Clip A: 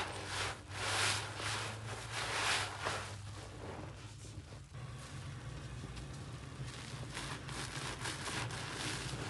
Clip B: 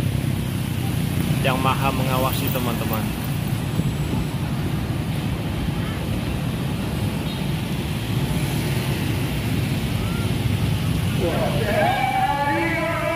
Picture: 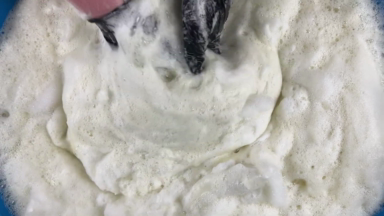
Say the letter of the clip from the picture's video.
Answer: A